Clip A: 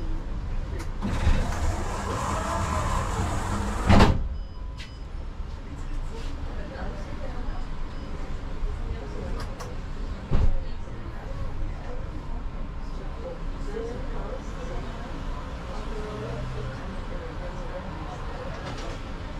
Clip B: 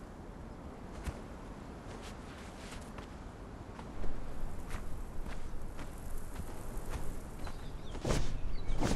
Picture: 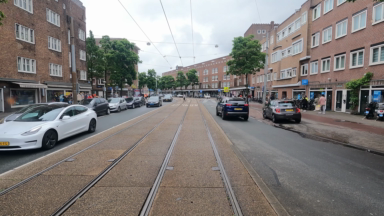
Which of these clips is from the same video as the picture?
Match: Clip A